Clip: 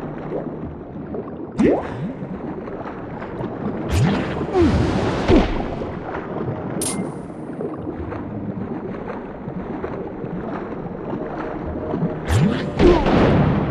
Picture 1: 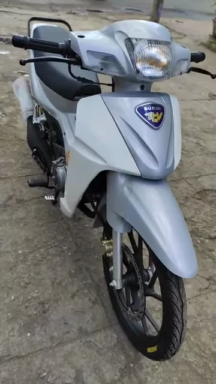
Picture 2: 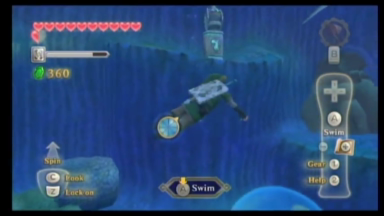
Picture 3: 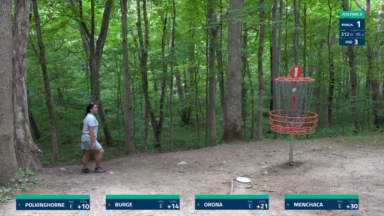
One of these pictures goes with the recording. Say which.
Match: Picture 2